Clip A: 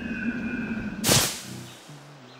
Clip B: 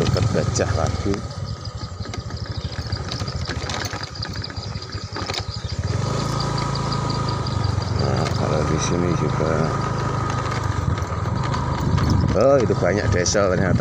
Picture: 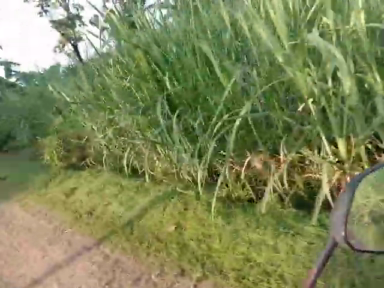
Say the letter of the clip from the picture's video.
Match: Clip B